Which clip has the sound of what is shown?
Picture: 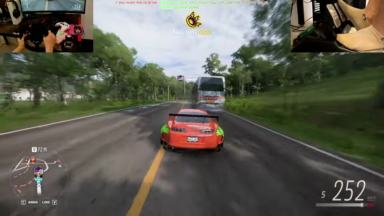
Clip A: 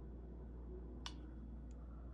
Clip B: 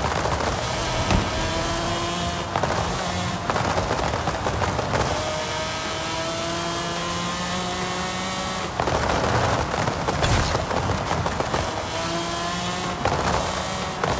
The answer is B